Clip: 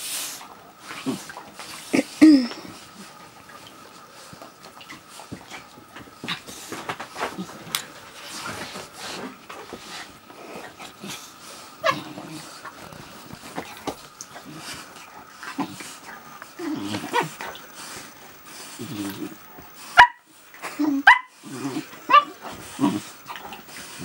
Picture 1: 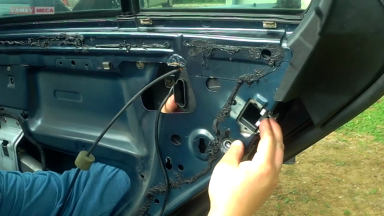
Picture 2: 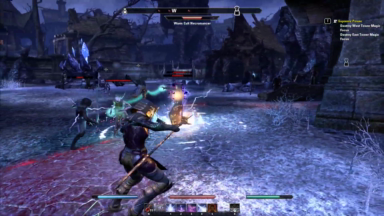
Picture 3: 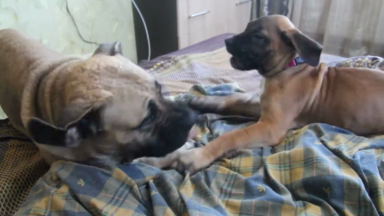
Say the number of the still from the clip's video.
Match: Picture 3